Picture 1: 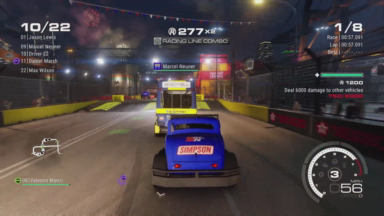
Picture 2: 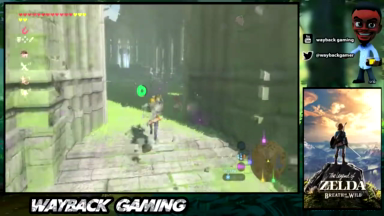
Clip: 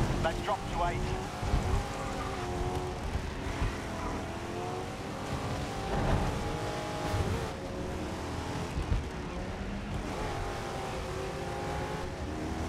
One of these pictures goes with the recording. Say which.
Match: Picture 1